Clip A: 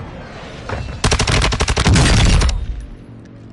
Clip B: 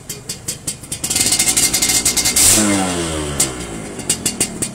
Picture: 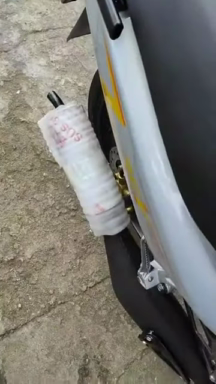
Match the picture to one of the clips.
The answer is B